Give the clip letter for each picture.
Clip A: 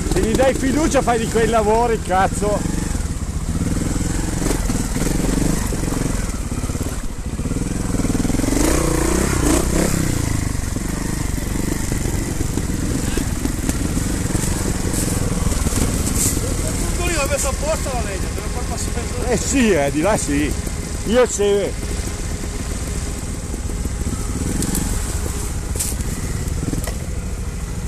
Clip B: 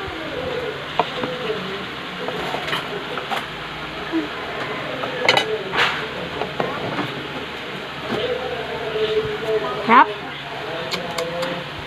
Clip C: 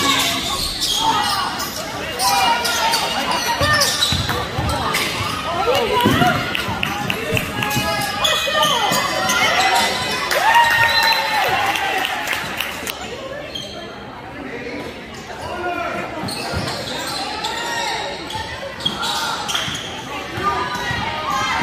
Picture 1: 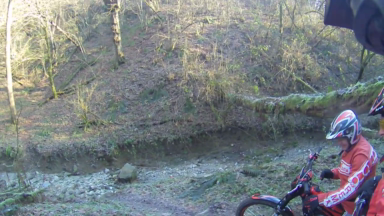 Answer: A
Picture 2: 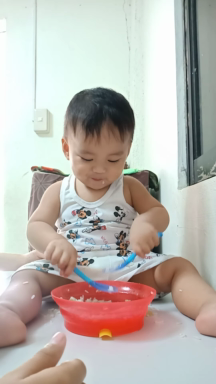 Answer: B